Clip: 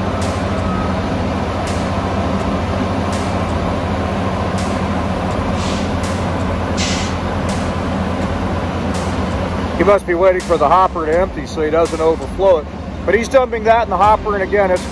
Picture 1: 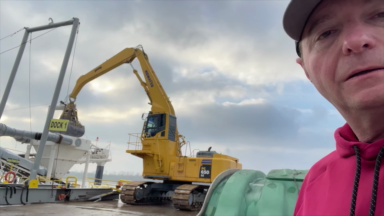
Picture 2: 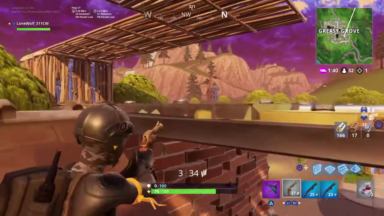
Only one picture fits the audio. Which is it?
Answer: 1